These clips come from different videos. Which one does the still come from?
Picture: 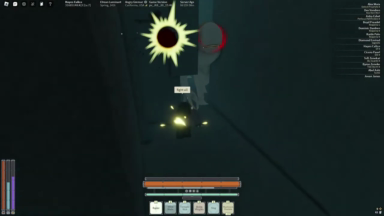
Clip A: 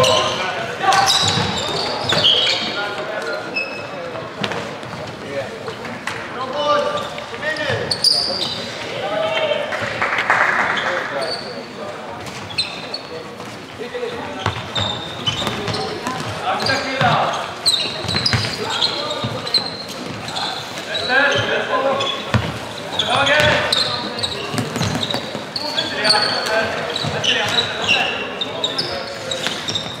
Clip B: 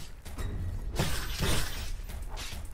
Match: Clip B